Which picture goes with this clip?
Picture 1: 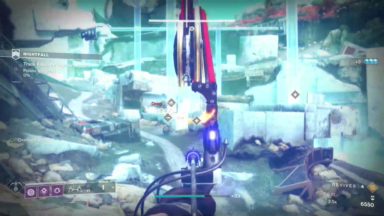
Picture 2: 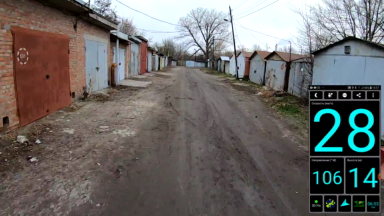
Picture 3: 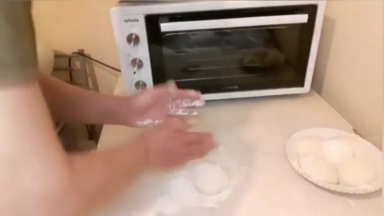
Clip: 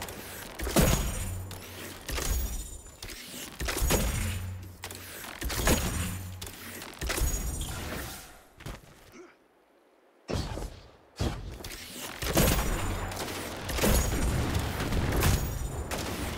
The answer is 1